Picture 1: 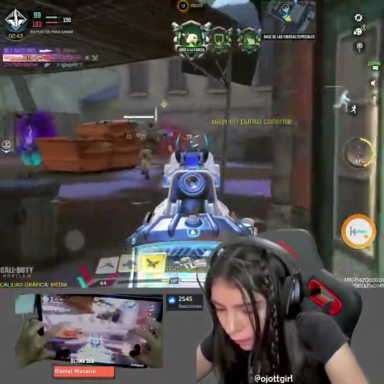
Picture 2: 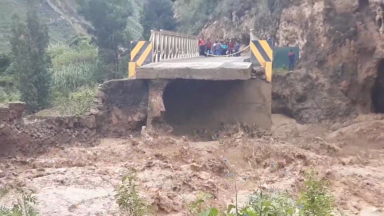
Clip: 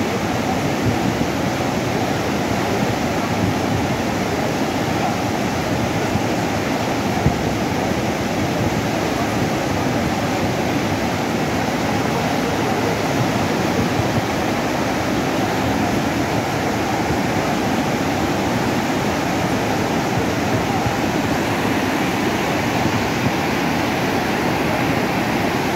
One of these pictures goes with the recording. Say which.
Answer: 2